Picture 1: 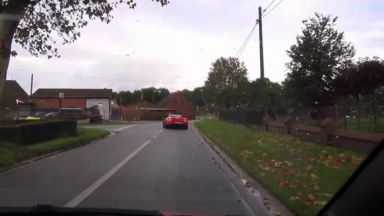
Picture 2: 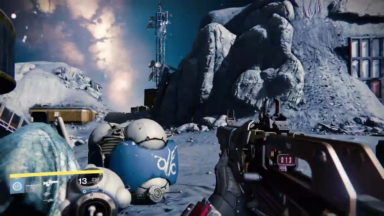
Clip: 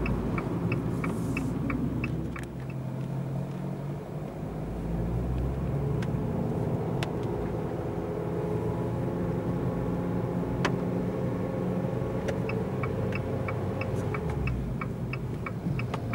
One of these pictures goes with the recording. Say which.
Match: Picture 1